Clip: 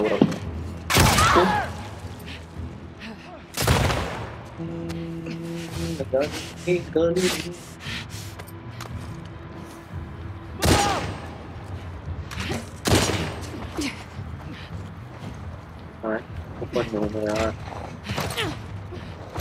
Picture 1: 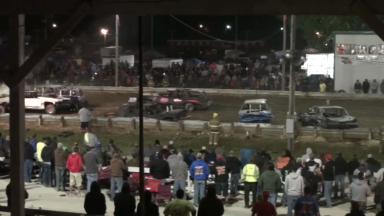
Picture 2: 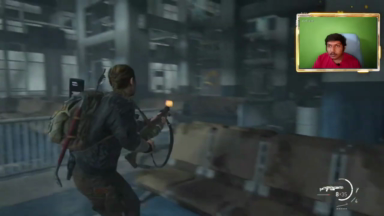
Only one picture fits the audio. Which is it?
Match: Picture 2